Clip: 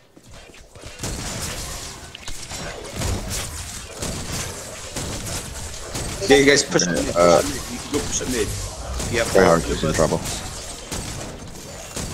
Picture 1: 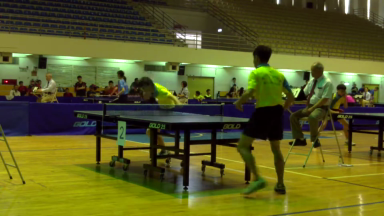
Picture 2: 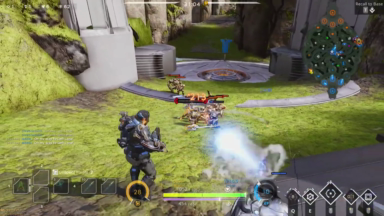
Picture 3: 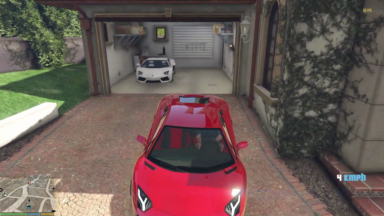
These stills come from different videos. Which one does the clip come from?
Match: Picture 2